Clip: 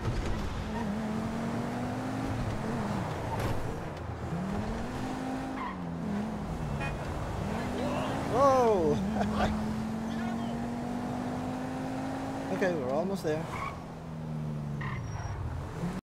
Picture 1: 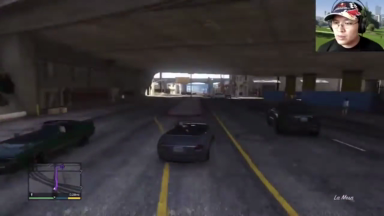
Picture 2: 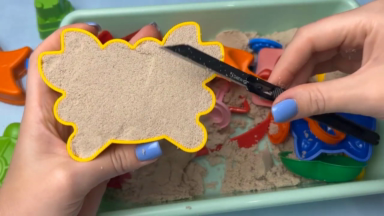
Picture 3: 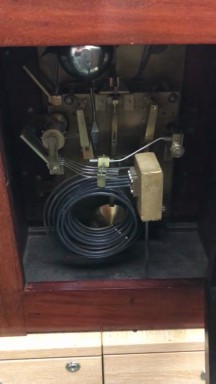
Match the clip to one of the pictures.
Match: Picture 1